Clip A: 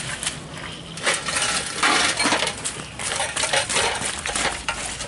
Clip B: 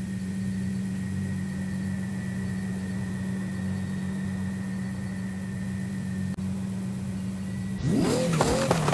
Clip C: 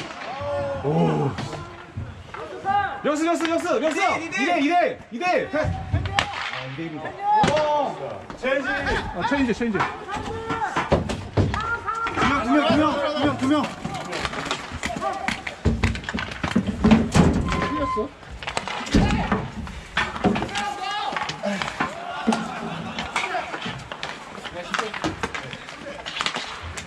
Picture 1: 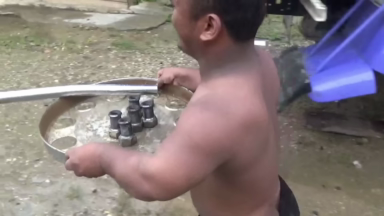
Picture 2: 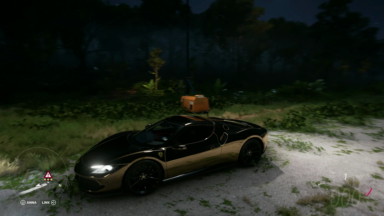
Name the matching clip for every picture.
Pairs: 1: A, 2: B